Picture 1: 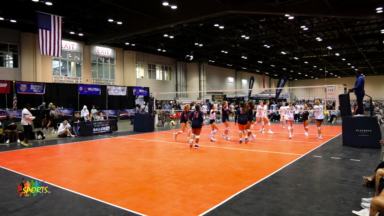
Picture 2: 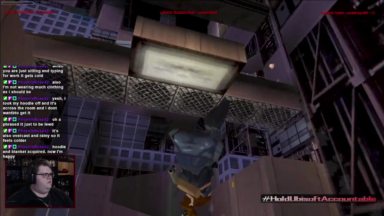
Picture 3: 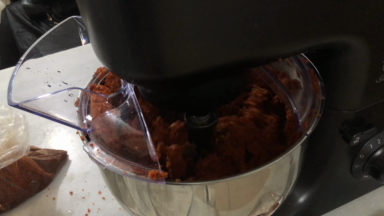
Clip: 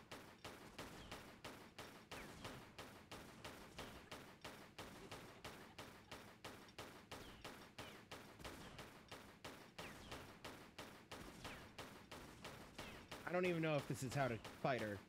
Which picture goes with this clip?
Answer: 2